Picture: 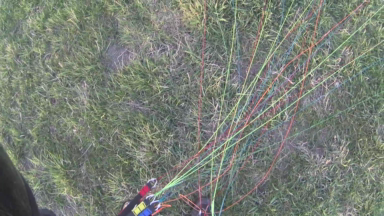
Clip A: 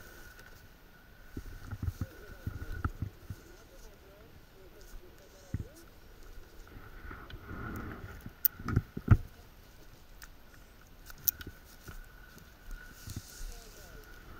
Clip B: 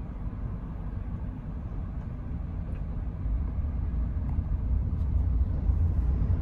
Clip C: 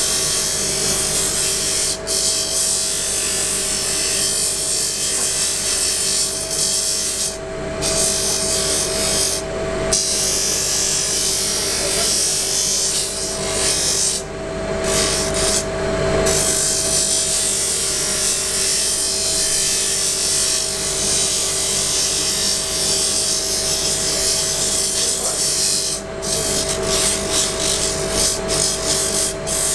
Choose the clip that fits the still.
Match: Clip A